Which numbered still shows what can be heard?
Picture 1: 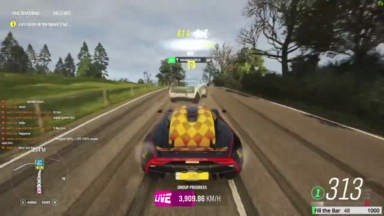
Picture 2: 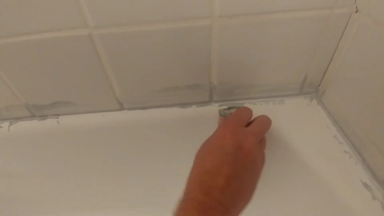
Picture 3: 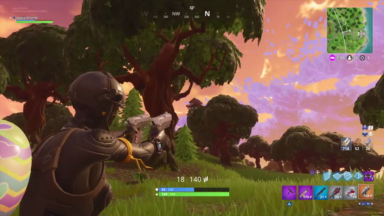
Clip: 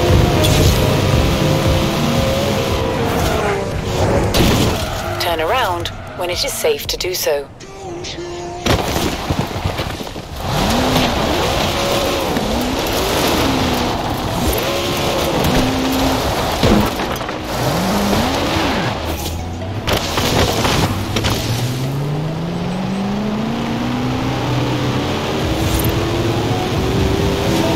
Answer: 1